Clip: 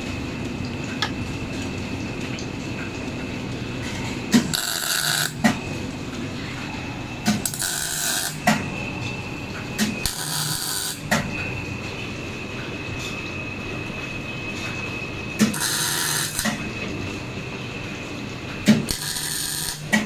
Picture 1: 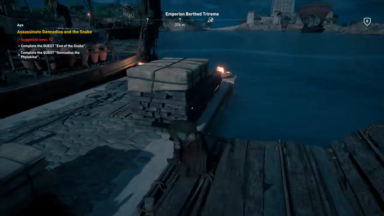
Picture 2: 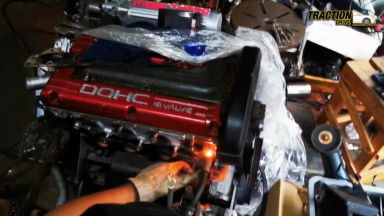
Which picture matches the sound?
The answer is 2